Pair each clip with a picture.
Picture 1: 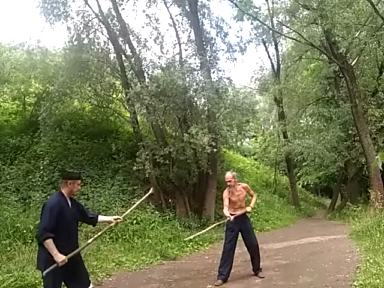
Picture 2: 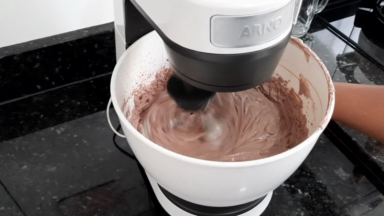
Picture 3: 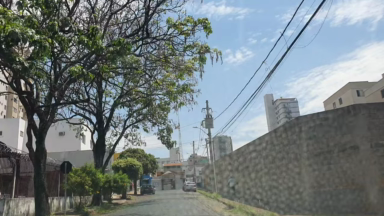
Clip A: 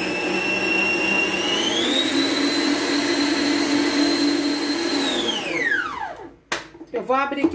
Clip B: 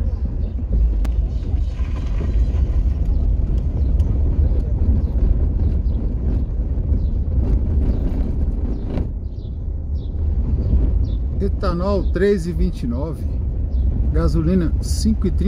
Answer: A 2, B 3